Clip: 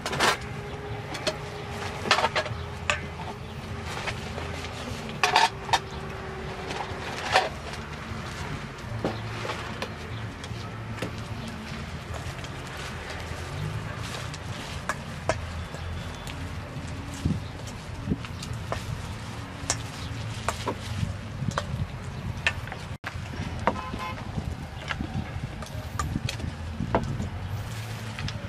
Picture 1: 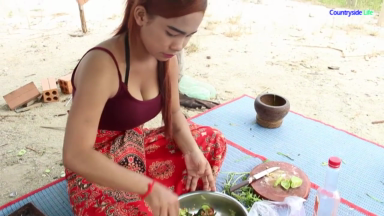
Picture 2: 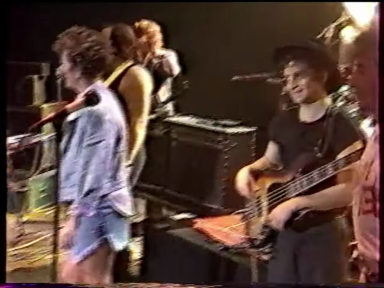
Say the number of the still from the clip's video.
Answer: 1